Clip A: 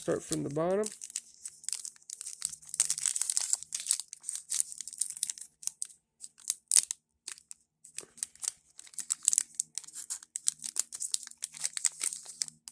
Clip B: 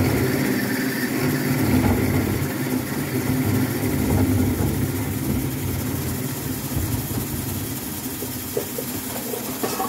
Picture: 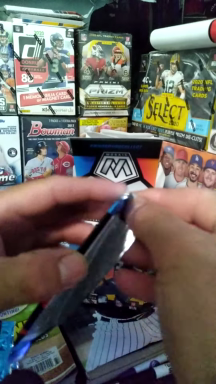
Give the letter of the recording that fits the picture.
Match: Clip A